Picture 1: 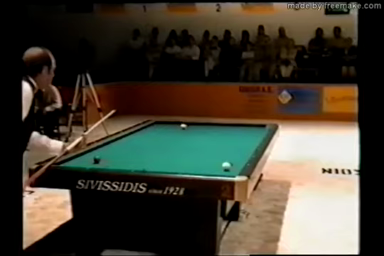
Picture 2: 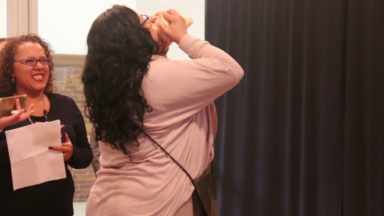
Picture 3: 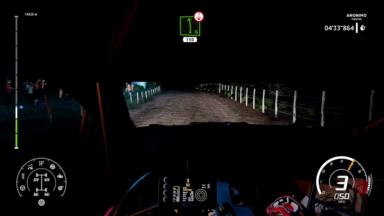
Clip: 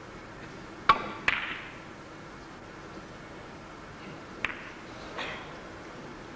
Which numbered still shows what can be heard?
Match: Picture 1